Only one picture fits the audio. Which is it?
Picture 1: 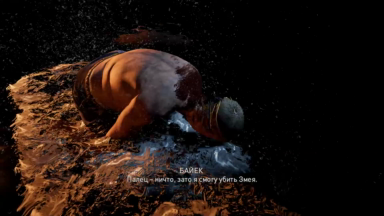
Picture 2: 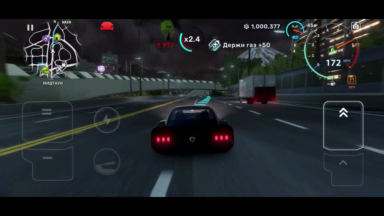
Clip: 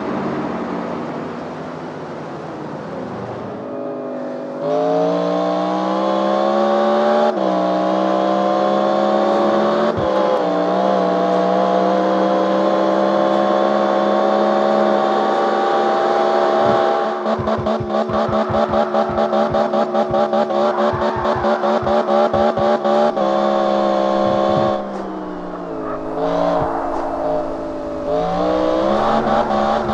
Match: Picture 2